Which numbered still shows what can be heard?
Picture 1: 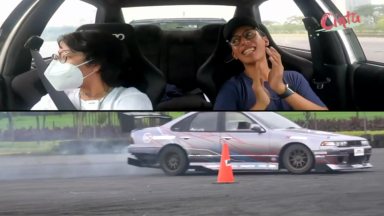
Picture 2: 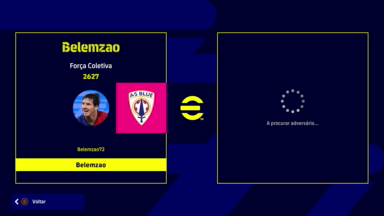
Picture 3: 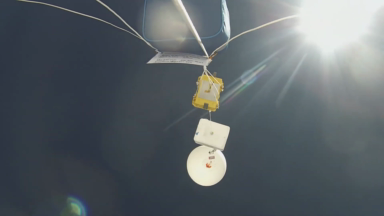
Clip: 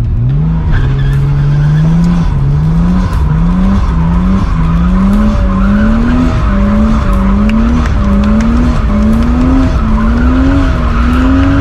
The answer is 1